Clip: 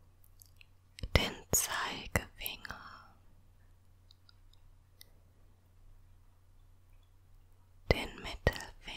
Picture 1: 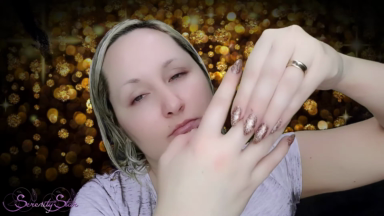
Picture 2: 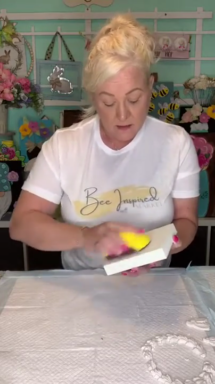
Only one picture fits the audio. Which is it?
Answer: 1